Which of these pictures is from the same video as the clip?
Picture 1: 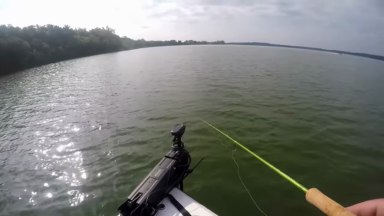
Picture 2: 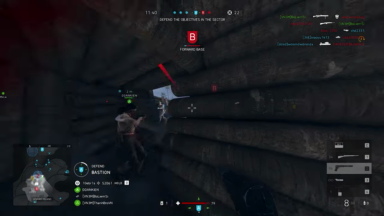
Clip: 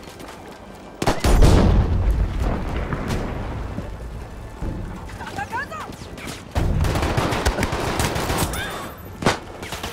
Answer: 2